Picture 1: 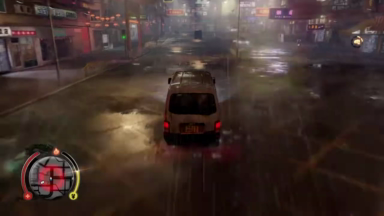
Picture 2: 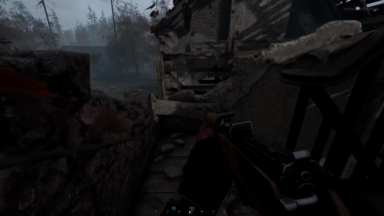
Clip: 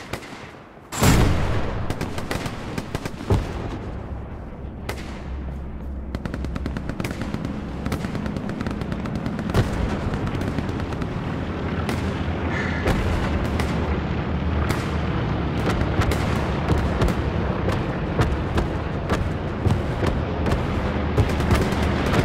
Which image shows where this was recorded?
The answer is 2